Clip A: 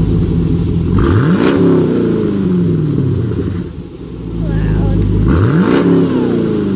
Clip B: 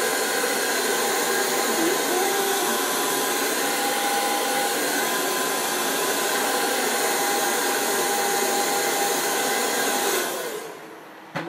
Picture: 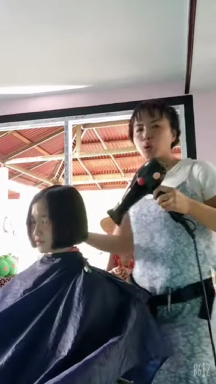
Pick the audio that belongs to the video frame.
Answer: B